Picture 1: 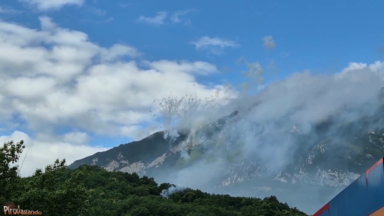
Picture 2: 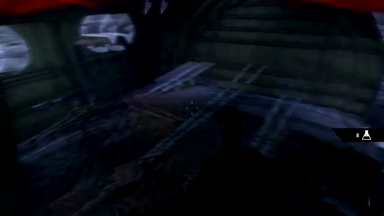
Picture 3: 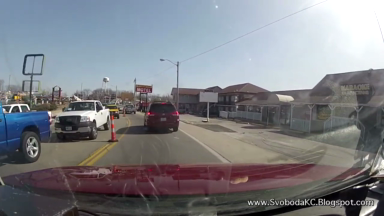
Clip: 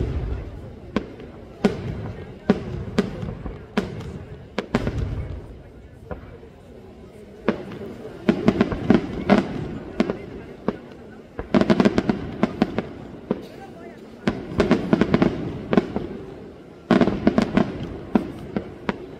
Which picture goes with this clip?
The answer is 1